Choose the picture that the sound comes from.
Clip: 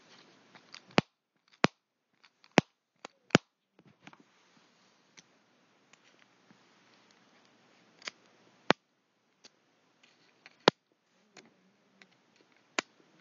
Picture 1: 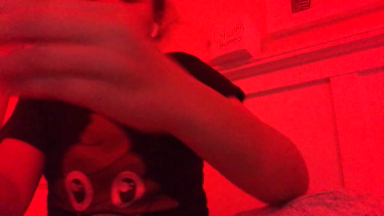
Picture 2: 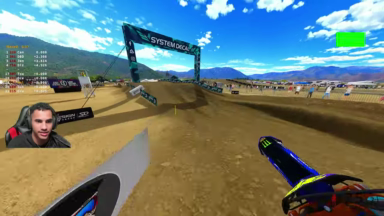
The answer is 1